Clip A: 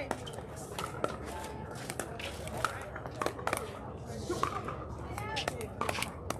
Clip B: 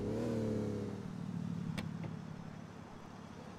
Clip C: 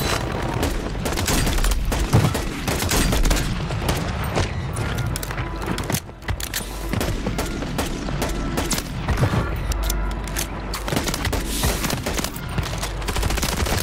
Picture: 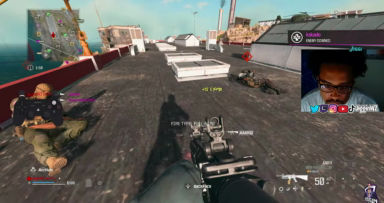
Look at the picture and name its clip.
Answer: C